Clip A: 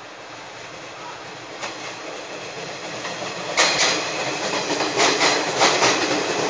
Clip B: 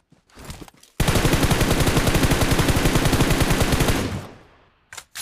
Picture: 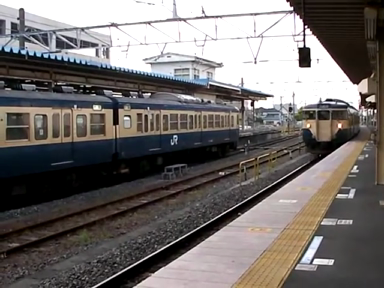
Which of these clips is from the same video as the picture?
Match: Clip A